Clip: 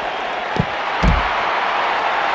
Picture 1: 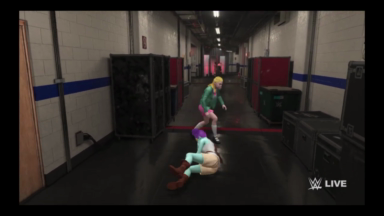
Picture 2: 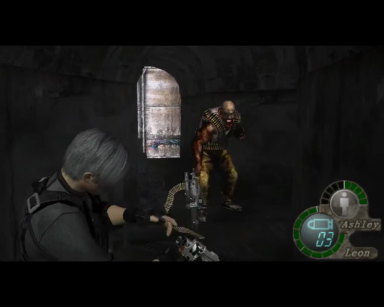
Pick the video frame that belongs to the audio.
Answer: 1